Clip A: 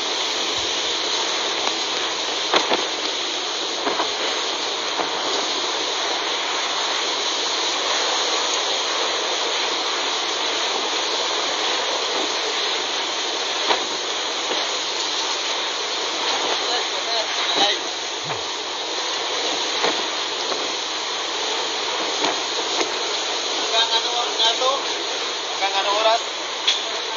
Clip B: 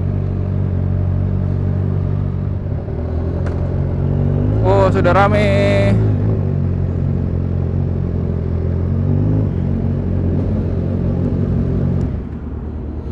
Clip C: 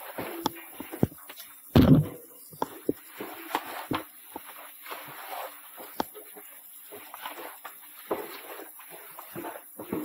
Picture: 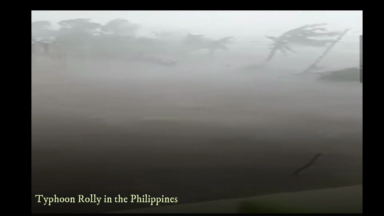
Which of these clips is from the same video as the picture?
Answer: A